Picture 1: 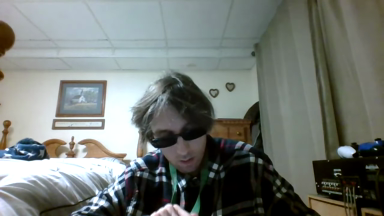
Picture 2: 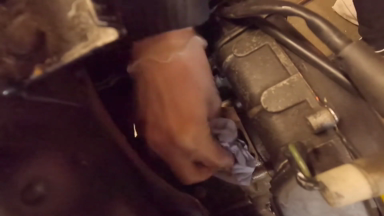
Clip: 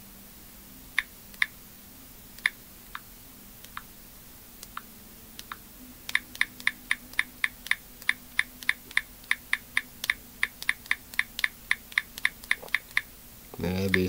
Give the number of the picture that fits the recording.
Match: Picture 1